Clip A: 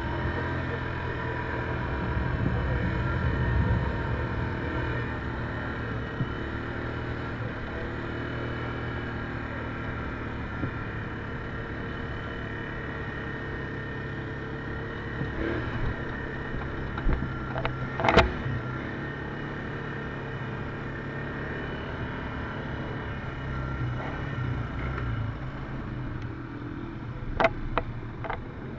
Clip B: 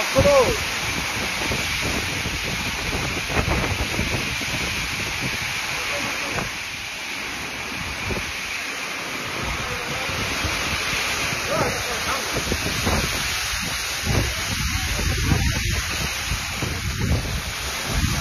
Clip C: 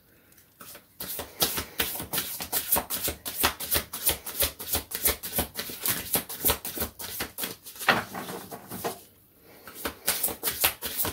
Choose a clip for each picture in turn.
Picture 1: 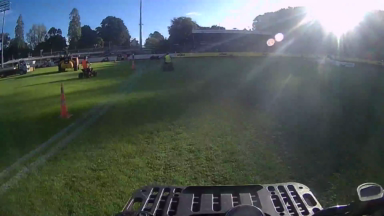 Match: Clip A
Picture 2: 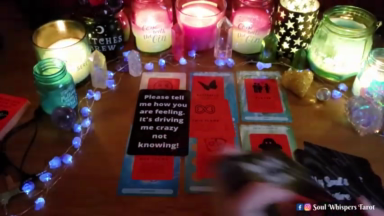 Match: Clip C